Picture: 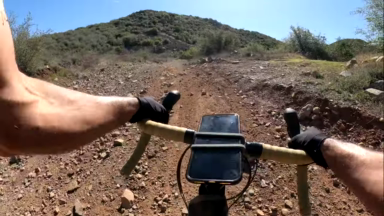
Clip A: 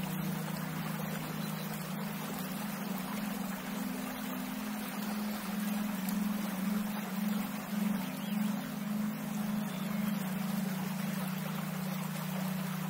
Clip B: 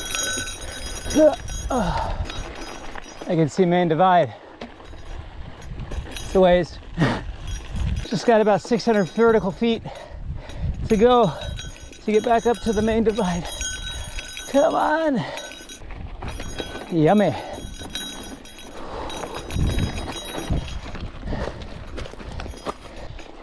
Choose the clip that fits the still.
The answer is B